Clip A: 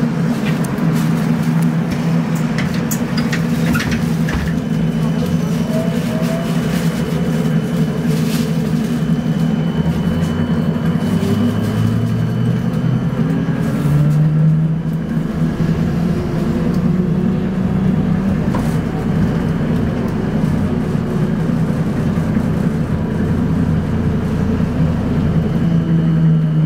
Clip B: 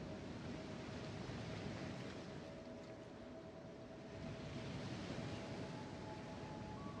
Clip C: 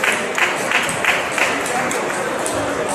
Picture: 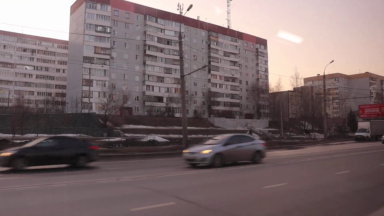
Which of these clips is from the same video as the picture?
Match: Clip A